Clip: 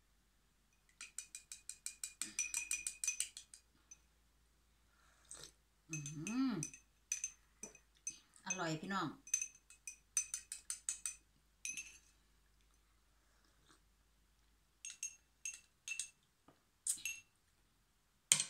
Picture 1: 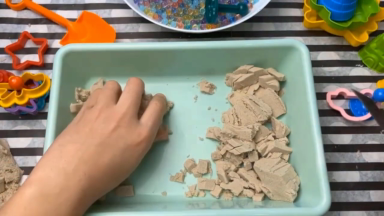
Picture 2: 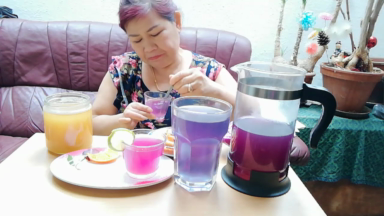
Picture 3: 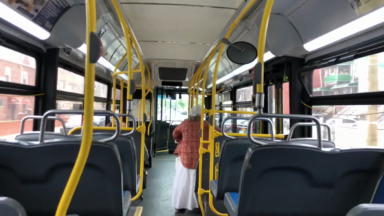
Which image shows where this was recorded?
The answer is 2